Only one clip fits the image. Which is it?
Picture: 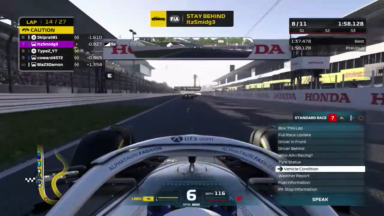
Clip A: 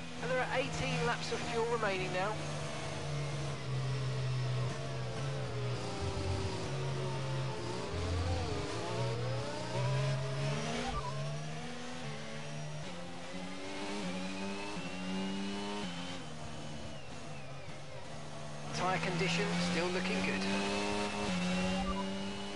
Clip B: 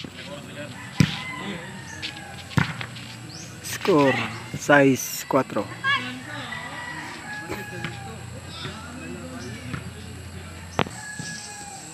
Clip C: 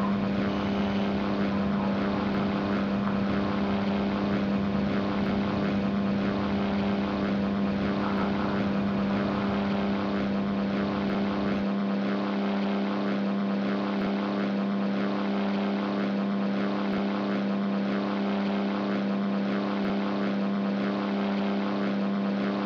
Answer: A